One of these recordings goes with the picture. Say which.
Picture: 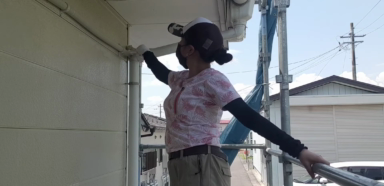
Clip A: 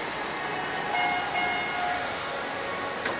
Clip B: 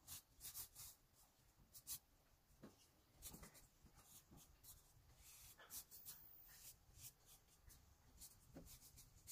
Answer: B